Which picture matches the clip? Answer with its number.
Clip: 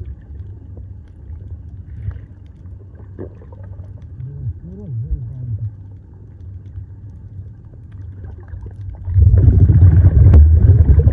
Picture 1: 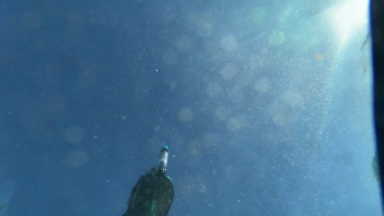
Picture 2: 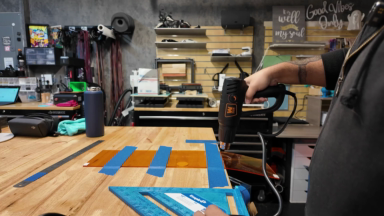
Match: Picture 1